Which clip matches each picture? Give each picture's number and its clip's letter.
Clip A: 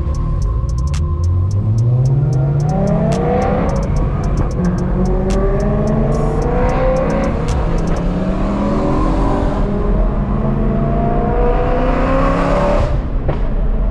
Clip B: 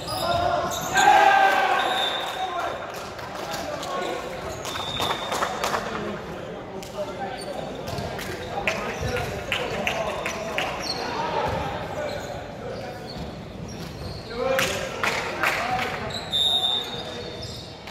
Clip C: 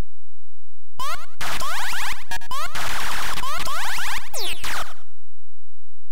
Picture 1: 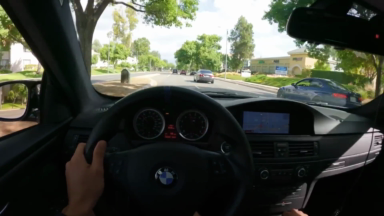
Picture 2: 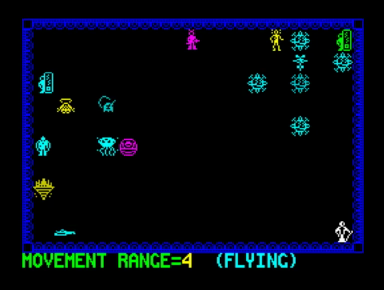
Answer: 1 A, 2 C